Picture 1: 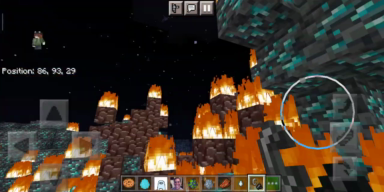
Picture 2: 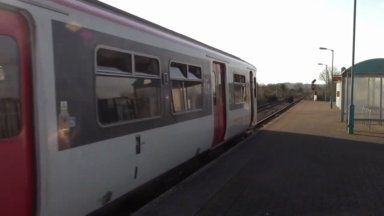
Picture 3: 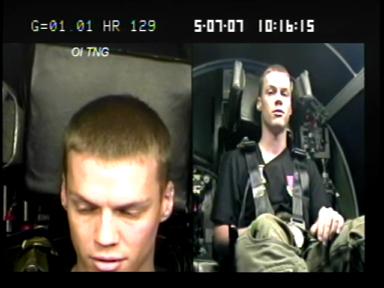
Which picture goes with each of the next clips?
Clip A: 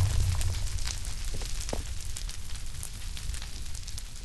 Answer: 1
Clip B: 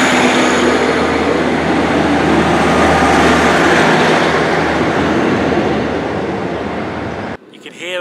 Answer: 2